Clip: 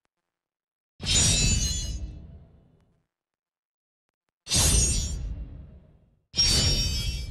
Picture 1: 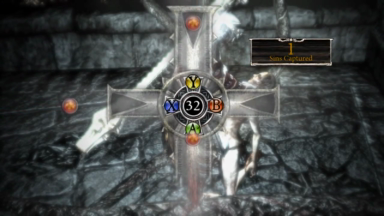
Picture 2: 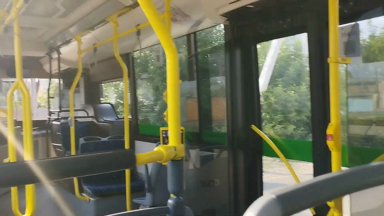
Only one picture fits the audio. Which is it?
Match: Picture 1